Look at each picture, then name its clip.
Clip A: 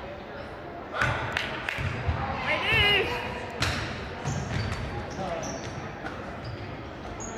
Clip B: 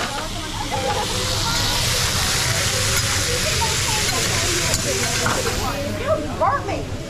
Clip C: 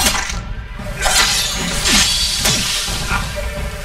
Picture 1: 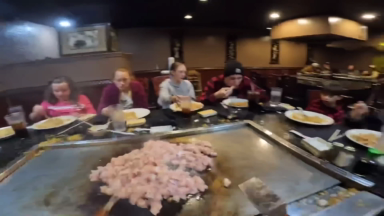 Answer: B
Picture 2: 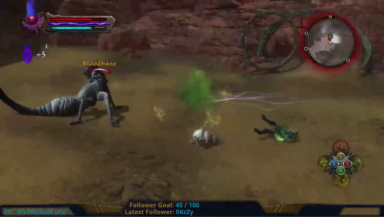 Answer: C